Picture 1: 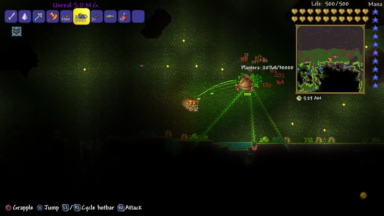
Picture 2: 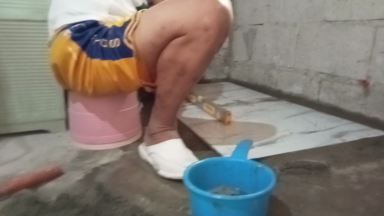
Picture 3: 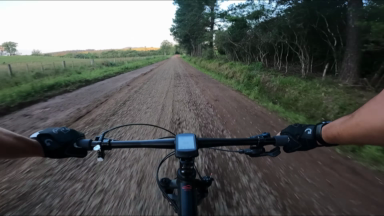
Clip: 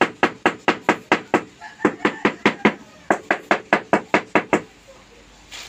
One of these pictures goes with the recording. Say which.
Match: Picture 2